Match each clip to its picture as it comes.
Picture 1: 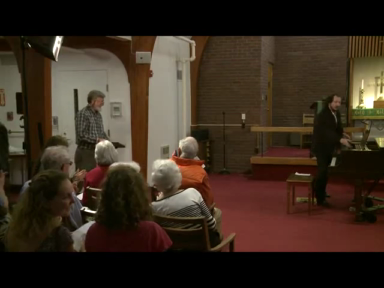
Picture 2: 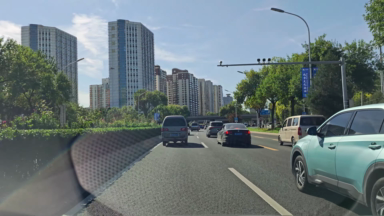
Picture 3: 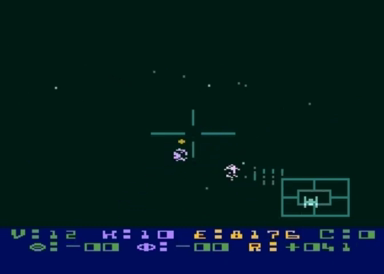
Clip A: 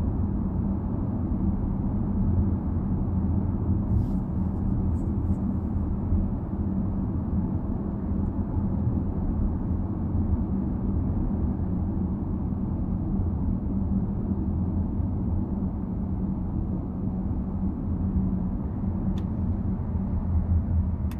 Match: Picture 2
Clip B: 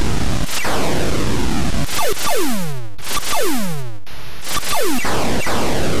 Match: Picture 3